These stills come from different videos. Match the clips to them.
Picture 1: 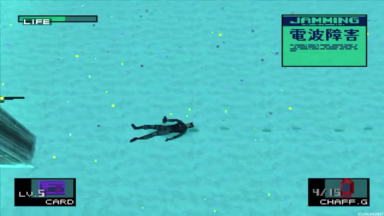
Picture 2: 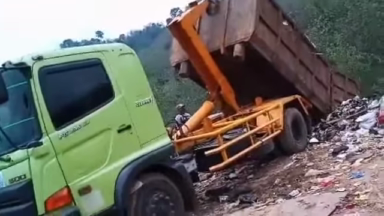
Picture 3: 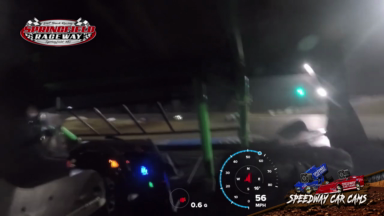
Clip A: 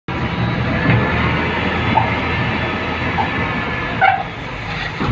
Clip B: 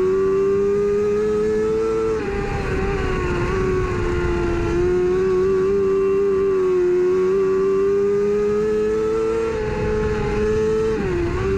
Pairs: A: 2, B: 3